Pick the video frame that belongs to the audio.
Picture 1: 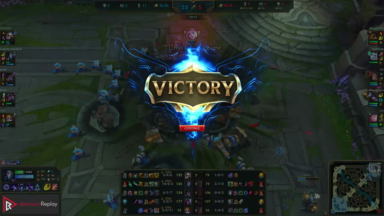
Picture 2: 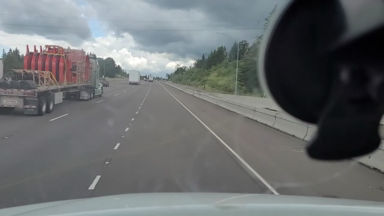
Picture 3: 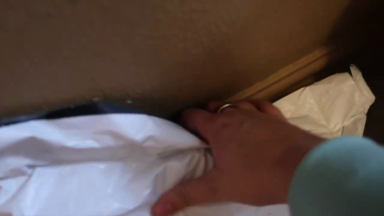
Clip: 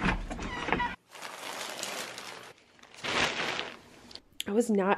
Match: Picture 3